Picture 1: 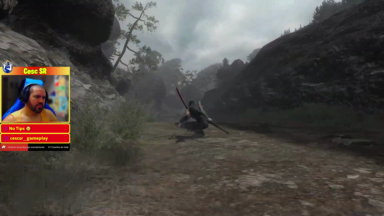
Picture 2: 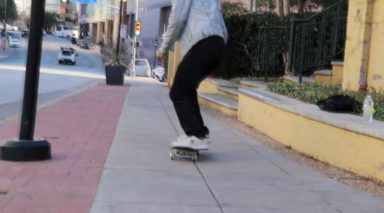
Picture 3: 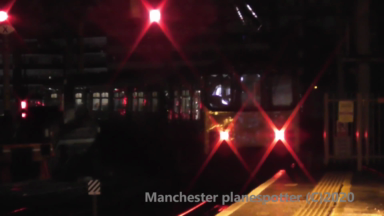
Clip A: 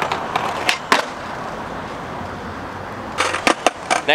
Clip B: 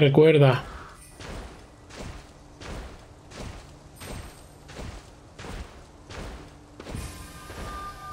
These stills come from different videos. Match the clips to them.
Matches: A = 2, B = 1